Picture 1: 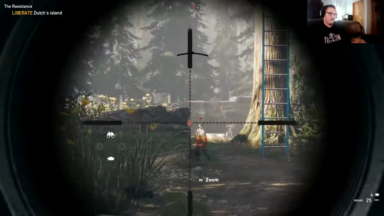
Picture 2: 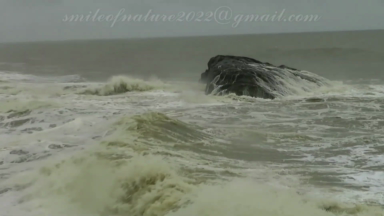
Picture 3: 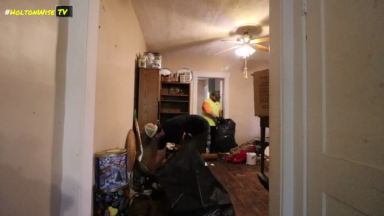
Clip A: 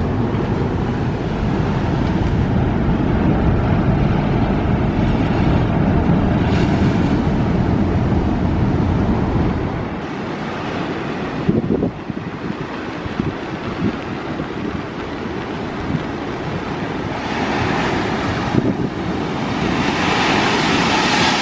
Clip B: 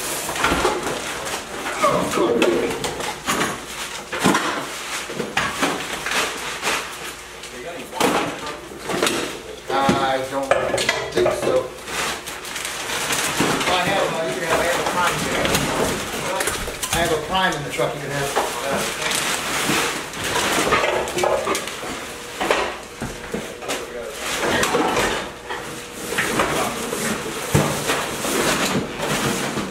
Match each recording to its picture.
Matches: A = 2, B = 3